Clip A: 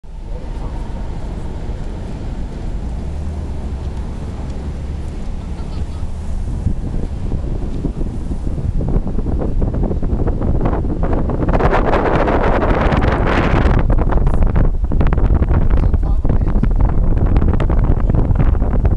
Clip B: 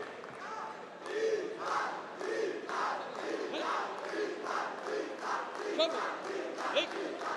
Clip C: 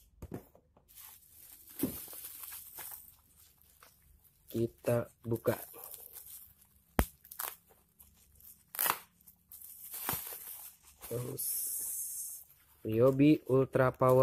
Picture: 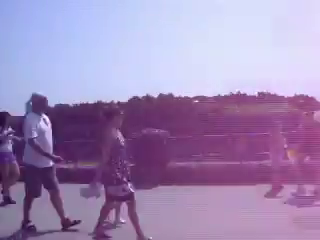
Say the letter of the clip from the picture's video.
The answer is A